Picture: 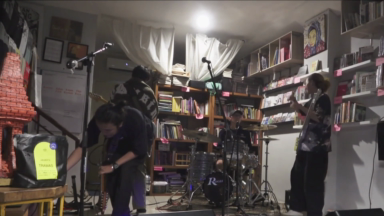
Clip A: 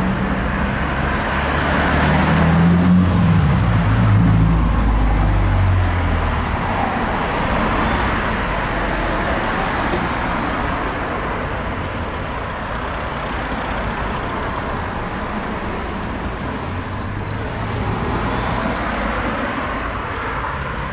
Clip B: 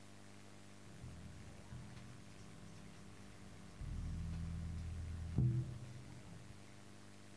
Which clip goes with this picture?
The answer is B